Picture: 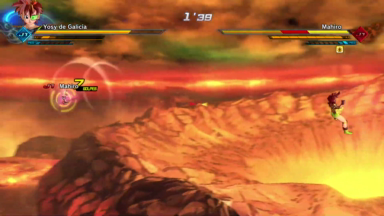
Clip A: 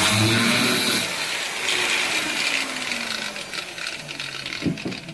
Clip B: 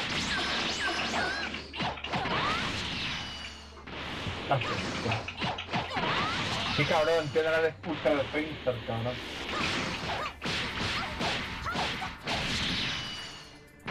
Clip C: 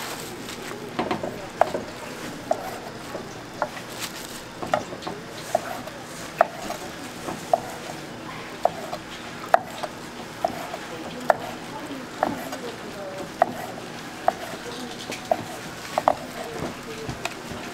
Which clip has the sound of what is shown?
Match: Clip B